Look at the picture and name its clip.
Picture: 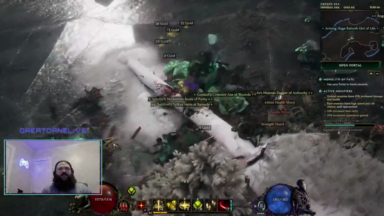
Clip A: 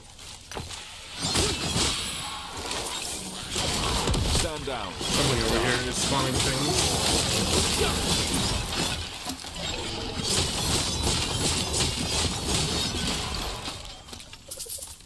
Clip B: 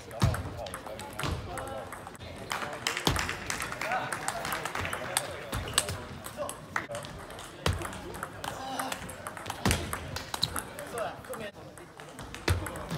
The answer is A